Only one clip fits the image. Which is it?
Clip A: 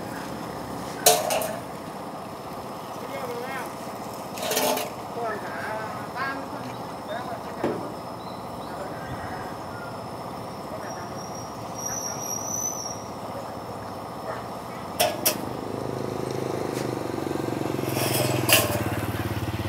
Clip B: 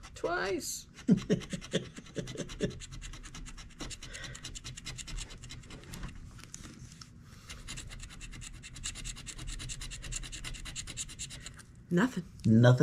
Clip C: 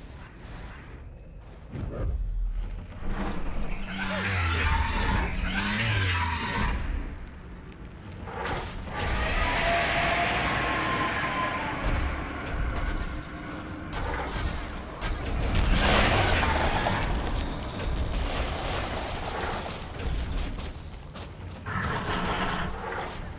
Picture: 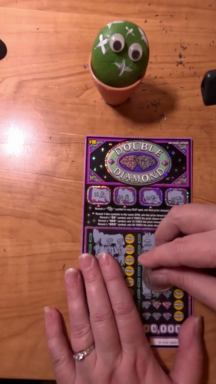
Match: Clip B